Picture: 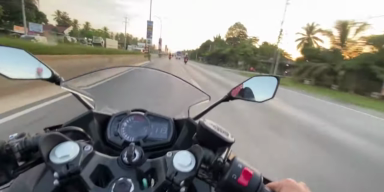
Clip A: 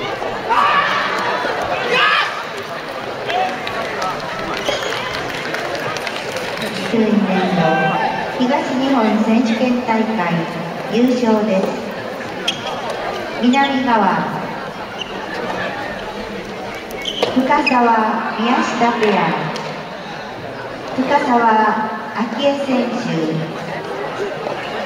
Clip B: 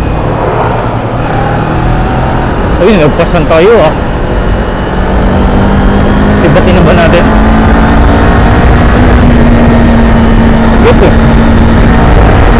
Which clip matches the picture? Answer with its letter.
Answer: B